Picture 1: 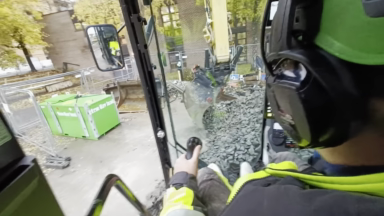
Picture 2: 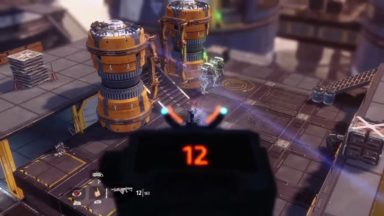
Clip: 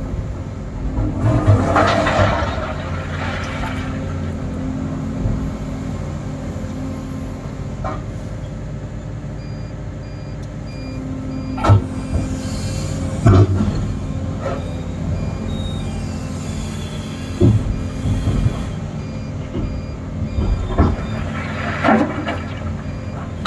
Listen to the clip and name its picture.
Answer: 1